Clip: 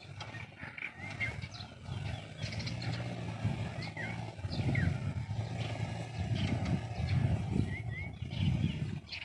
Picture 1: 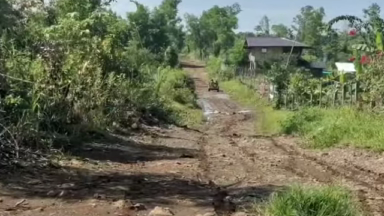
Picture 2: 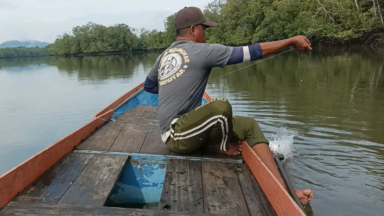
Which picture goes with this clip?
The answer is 1